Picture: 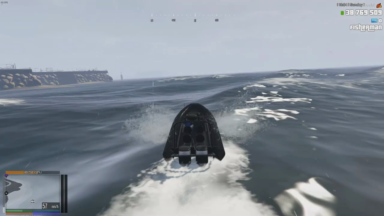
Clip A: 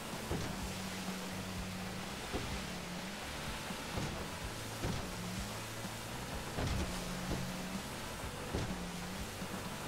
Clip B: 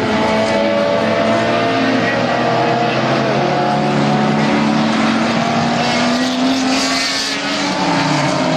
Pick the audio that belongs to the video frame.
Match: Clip A